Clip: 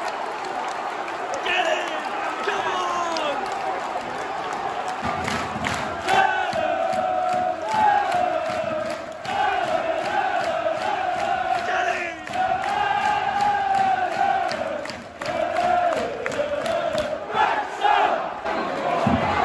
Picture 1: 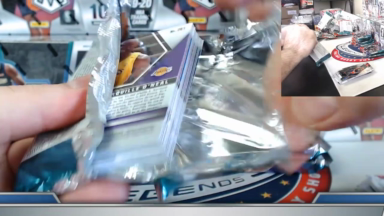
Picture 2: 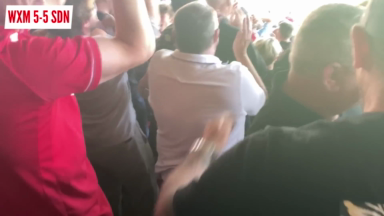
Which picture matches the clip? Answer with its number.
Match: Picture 2